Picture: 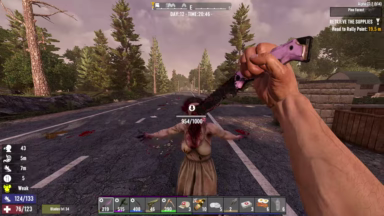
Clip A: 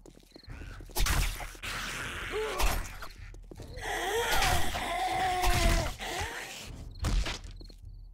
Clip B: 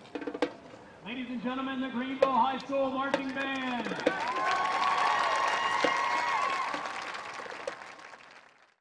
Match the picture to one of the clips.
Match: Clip A